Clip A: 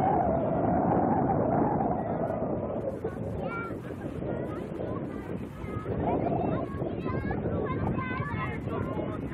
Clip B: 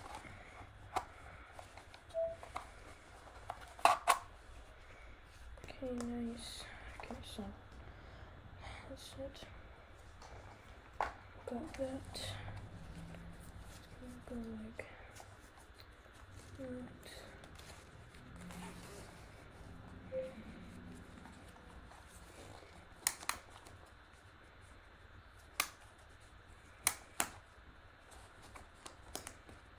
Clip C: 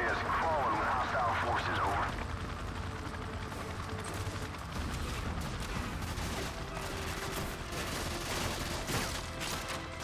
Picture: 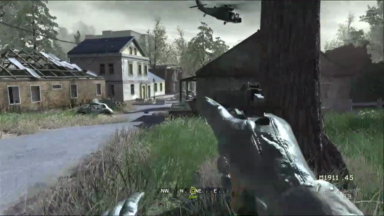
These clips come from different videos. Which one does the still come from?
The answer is C